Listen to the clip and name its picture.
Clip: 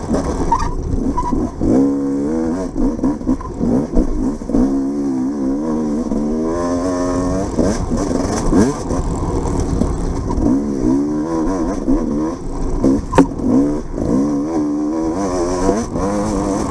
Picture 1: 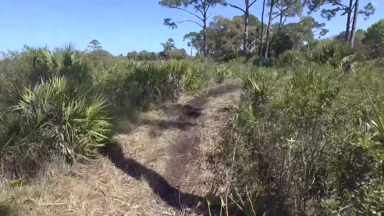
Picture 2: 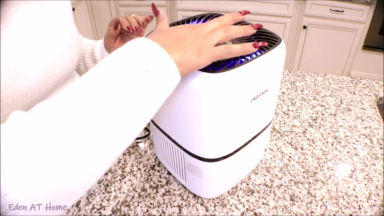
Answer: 1